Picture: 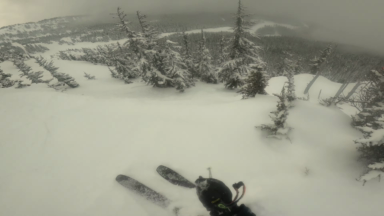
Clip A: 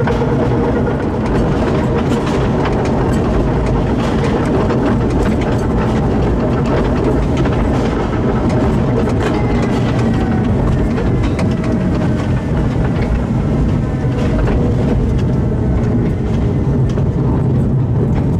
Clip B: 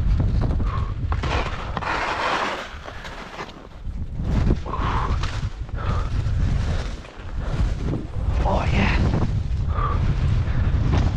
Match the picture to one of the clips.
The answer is B